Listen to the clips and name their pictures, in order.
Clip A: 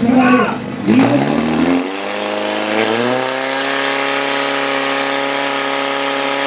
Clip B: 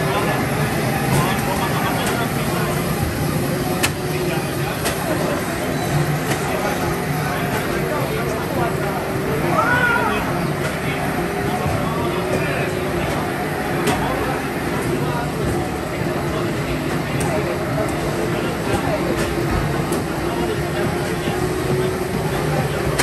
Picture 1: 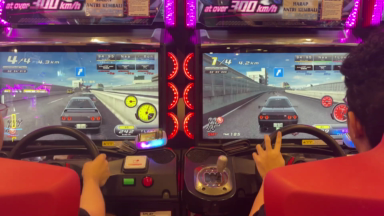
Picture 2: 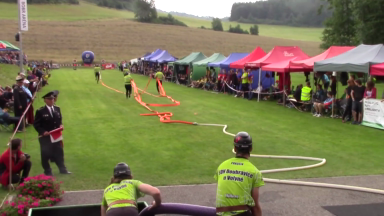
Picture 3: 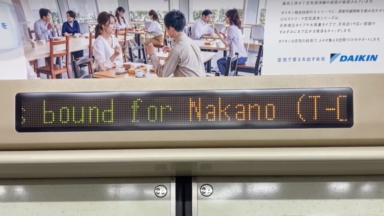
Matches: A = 2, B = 1